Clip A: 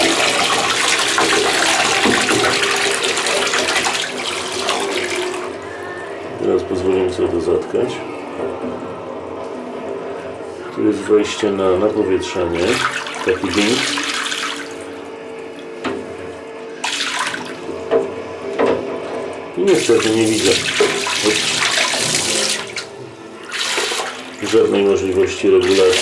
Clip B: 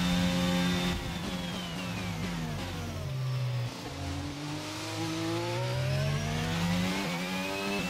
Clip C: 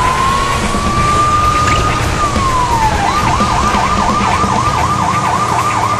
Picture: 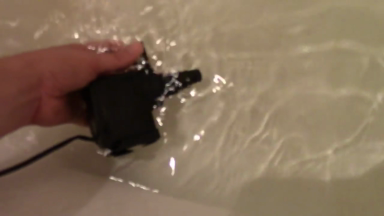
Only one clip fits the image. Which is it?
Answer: A